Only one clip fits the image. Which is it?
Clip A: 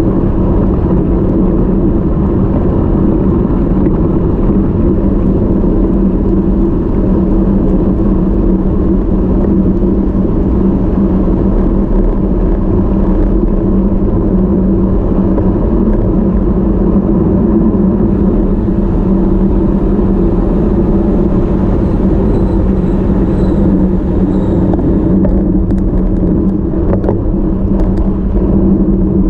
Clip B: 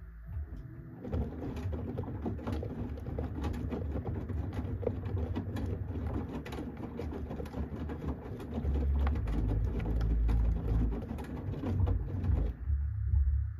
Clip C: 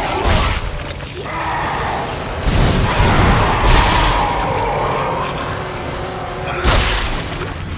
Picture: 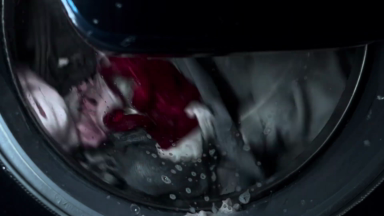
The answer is B